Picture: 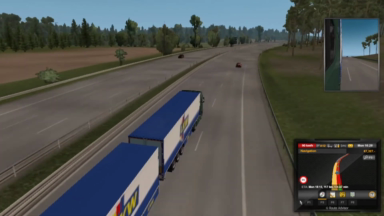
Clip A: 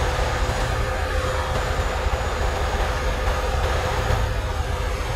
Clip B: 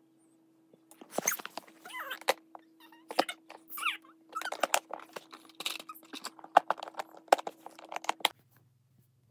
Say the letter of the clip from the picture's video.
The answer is A